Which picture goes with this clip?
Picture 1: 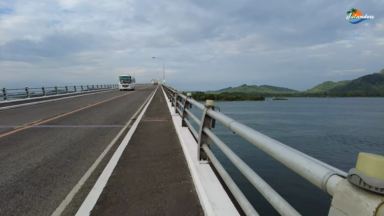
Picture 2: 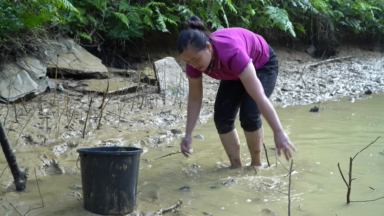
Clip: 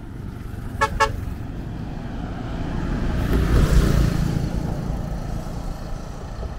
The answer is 1